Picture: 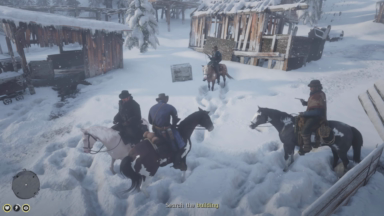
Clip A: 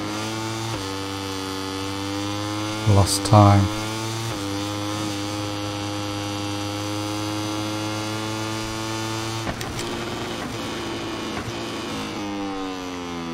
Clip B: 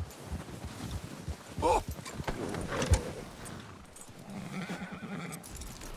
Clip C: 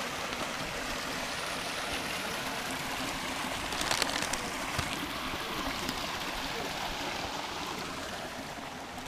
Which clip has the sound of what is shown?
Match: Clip B